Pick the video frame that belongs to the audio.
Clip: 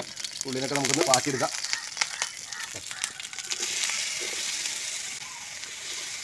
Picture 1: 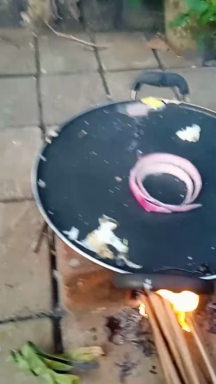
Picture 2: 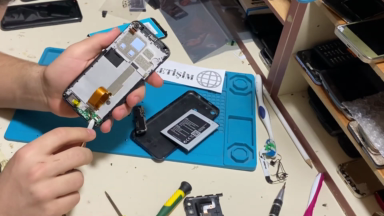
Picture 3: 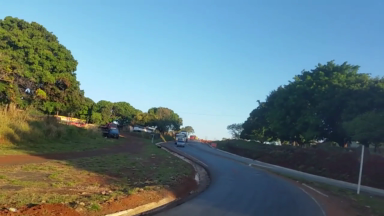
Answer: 1